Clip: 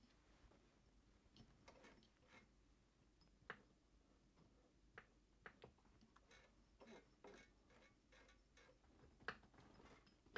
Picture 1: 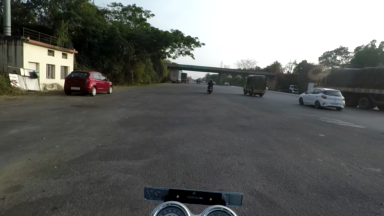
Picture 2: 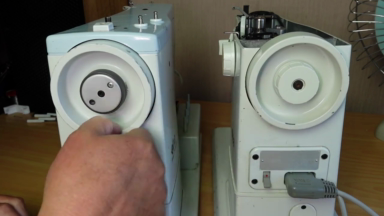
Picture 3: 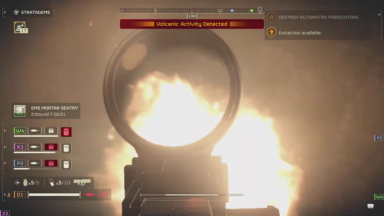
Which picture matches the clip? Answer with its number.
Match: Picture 2